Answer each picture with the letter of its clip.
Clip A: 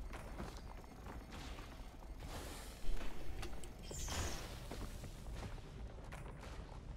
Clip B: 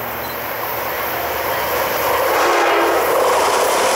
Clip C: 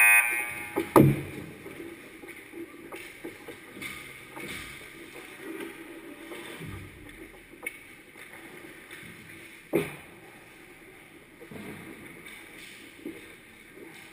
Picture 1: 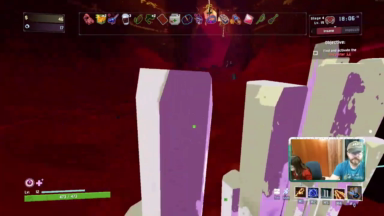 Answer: A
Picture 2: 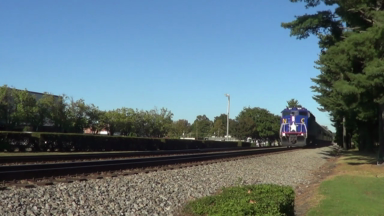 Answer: B